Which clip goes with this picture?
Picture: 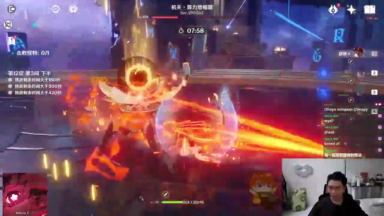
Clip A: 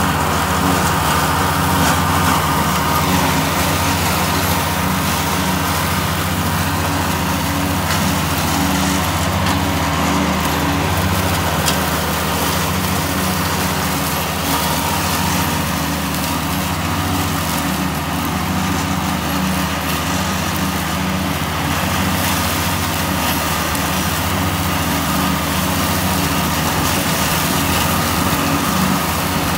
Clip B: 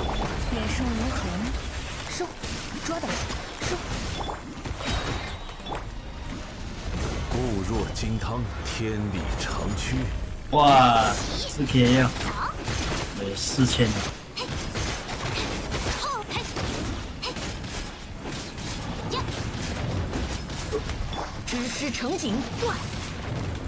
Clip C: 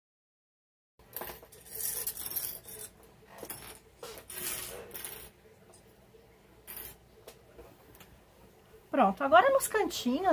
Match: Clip B